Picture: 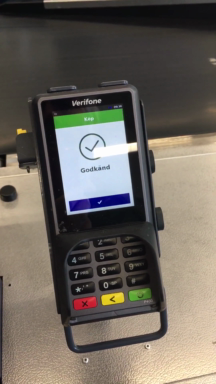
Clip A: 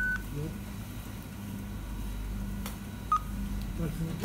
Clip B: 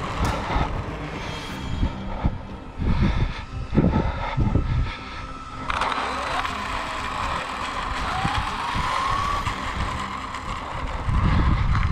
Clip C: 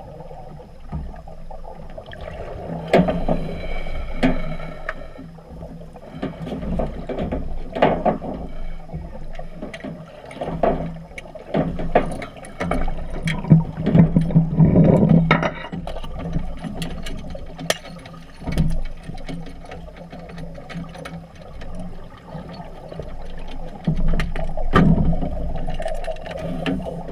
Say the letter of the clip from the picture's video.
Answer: A